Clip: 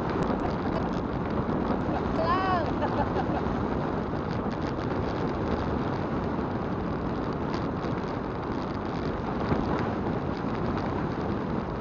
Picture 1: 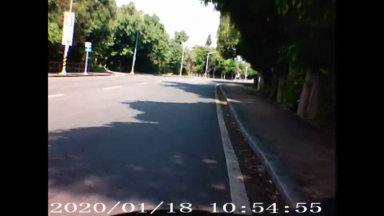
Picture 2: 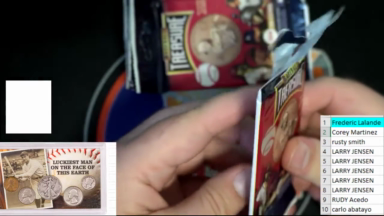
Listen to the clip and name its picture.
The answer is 1